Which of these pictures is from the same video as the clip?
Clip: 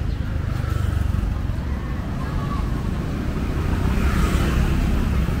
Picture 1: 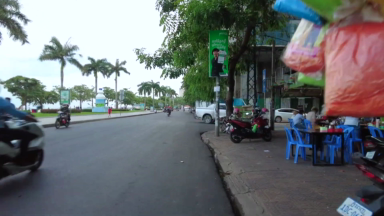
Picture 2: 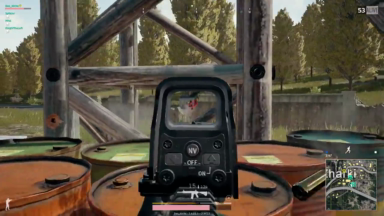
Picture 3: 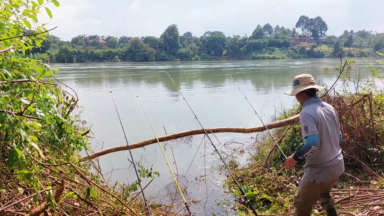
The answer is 1